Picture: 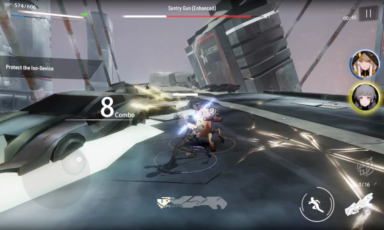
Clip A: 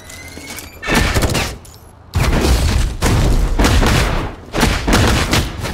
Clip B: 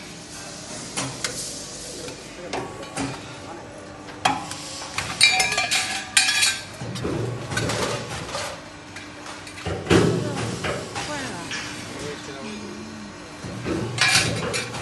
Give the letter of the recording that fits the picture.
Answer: A